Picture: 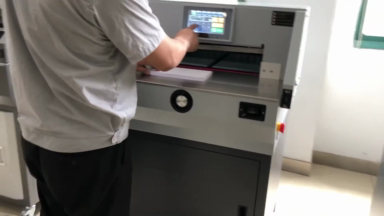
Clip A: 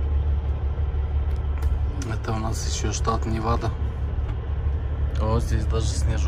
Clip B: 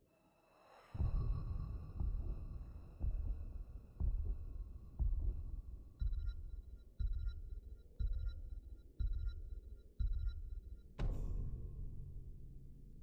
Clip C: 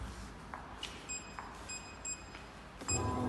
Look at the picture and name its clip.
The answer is C